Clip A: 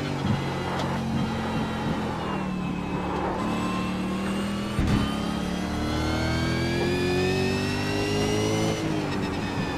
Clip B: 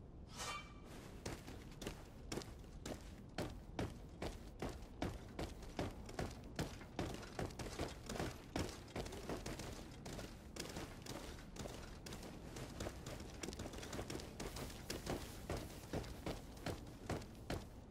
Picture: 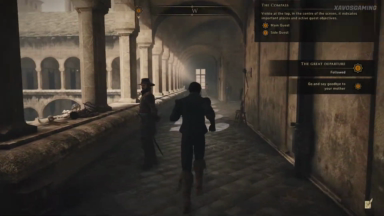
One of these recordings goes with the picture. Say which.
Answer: B